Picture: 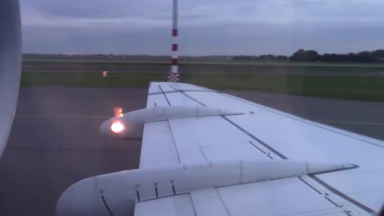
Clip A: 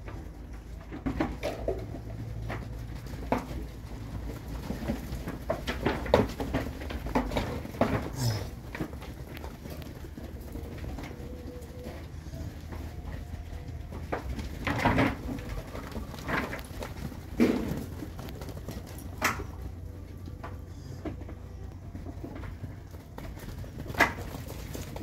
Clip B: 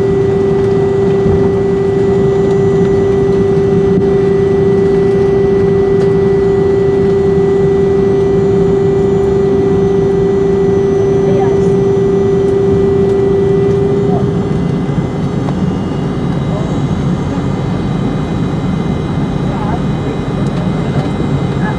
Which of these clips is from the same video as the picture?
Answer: B